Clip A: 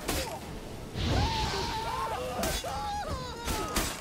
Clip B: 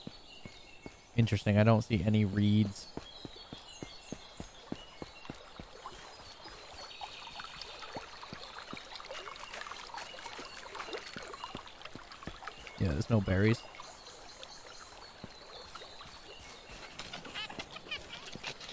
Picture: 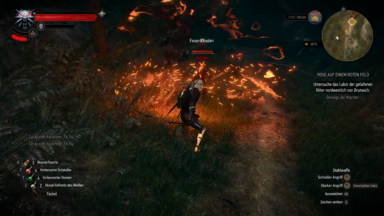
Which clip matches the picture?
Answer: A